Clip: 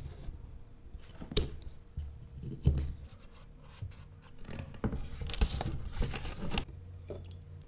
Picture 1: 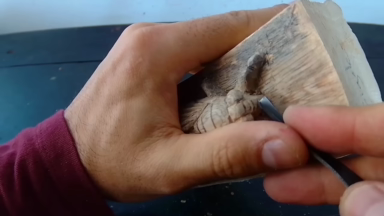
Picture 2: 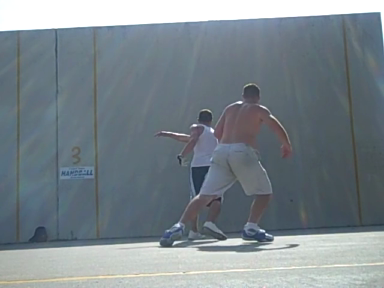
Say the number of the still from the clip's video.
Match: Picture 1